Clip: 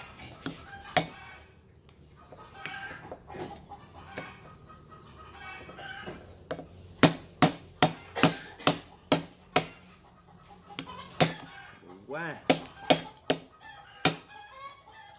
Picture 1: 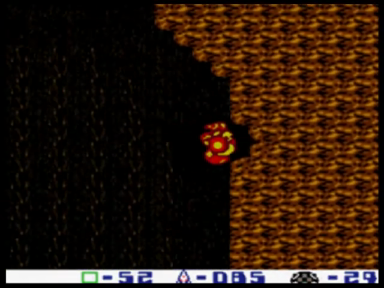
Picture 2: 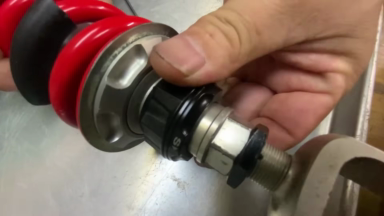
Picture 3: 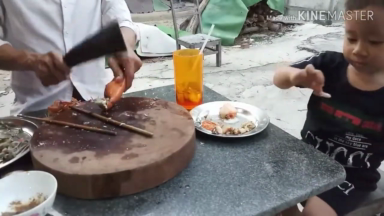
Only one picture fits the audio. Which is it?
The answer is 3